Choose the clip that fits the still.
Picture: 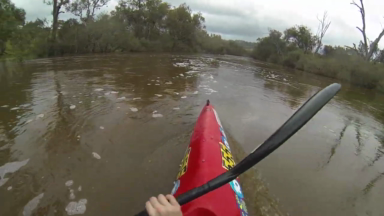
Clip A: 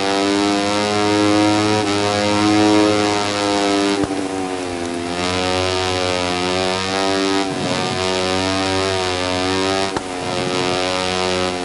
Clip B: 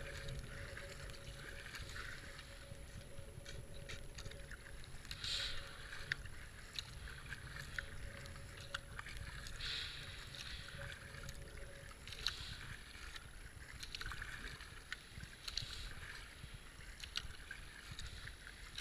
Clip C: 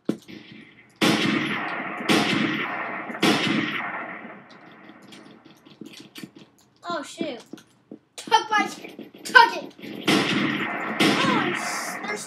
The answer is B